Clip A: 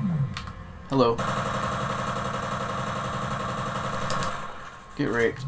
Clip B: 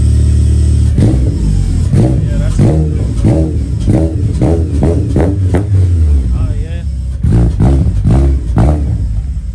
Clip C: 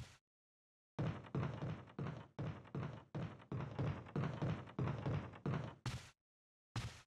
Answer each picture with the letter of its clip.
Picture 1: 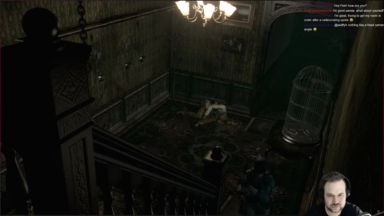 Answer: C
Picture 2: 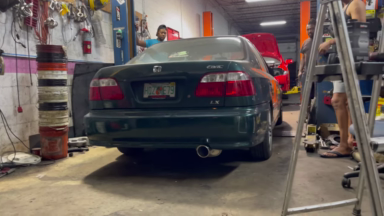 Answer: B